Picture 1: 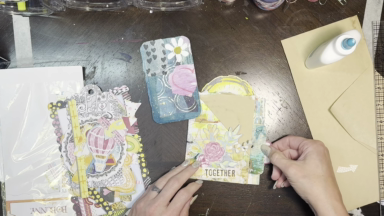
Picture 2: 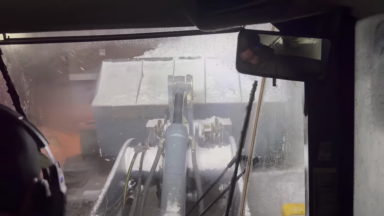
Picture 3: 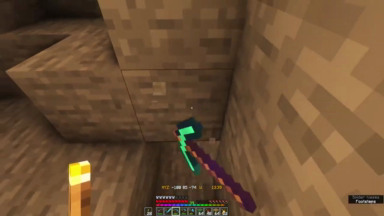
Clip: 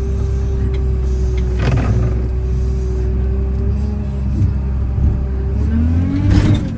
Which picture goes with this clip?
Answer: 2